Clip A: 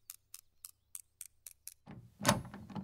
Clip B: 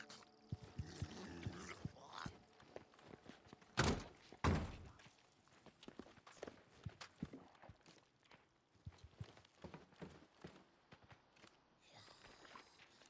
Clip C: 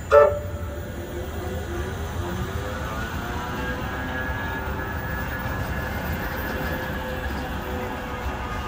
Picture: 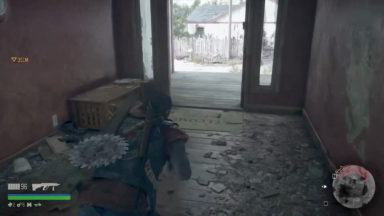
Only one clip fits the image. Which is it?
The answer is B